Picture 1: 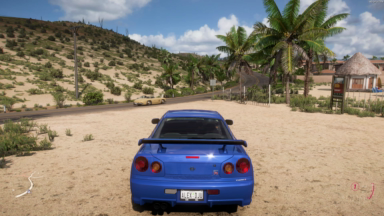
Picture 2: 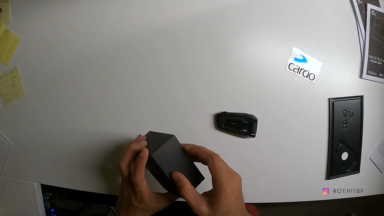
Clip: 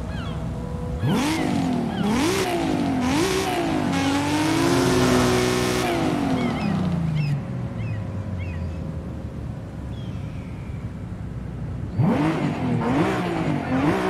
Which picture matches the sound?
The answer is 1